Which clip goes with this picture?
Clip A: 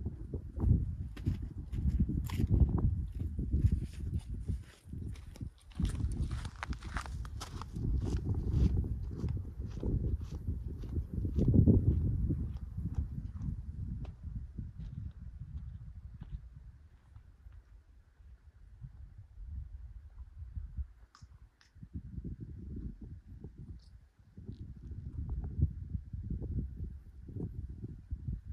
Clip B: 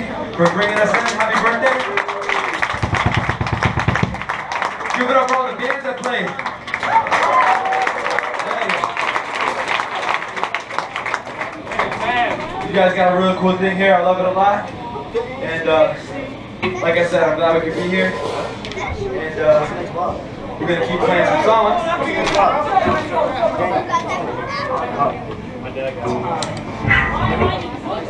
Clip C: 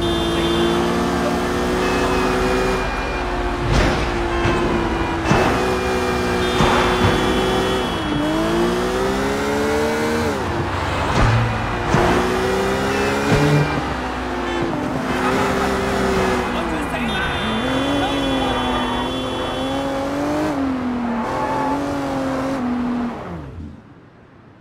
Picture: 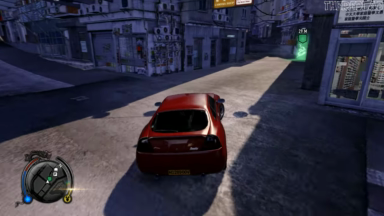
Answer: C